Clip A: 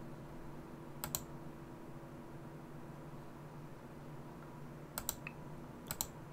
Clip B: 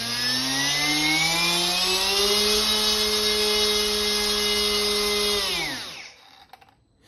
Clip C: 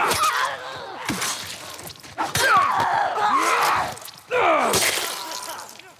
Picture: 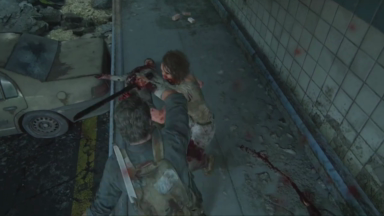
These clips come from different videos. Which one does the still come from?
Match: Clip C